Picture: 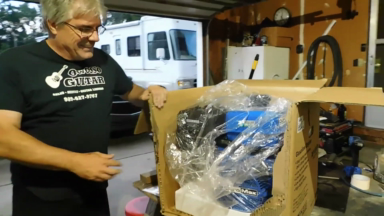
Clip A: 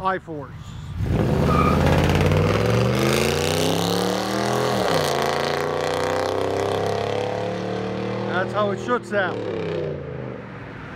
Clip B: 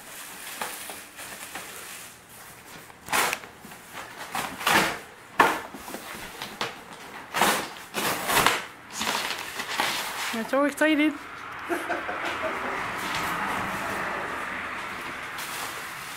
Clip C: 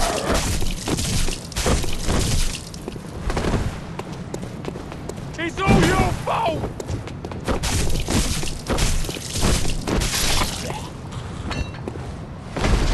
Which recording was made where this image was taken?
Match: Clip B